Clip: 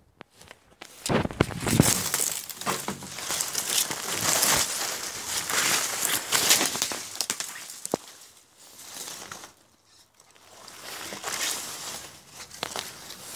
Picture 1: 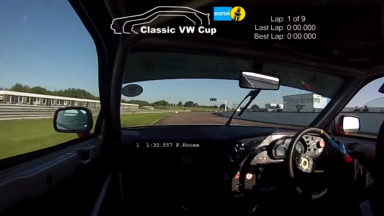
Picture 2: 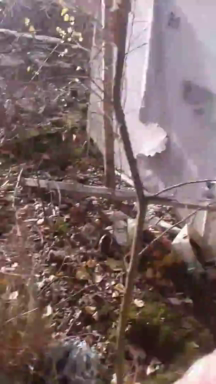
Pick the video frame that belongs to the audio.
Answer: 2